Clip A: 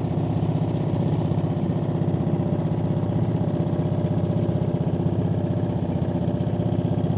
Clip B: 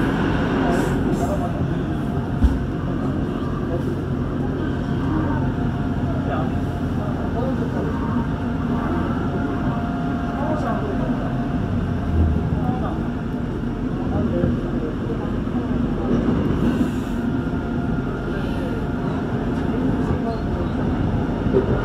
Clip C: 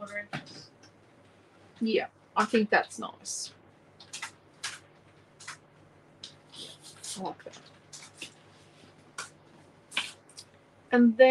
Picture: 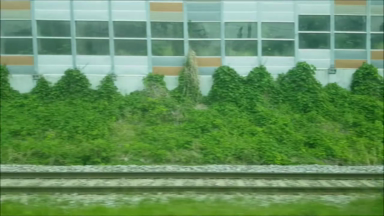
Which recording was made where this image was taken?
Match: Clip B